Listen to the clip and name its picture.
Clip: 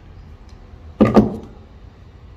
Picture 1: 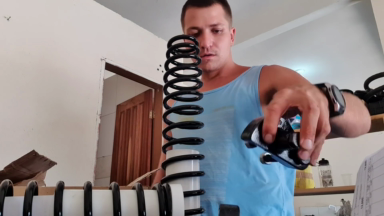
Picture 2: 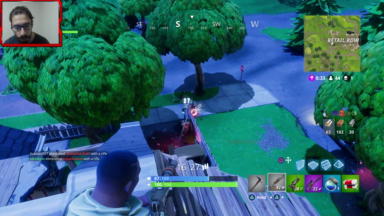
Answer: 1